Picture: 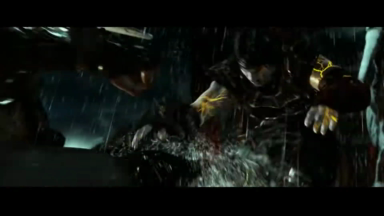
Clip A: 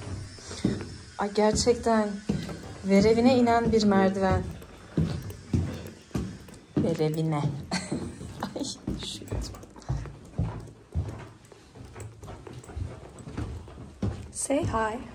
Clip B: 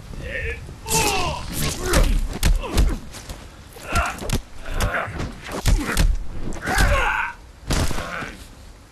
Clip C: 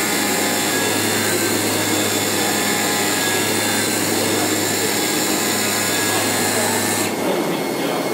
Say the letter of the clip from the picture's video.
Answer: B